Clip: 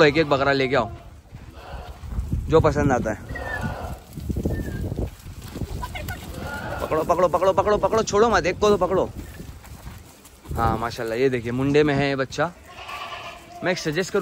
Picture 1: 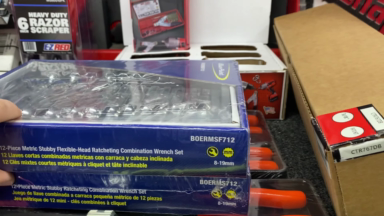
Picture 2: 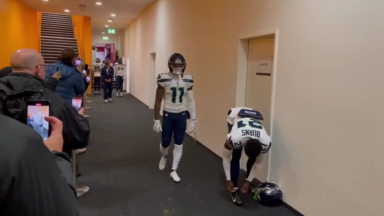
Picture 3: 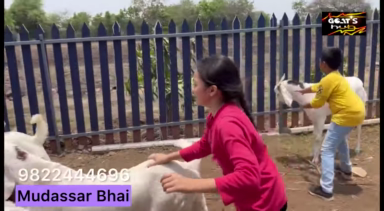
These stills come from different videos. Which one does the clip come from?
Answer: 3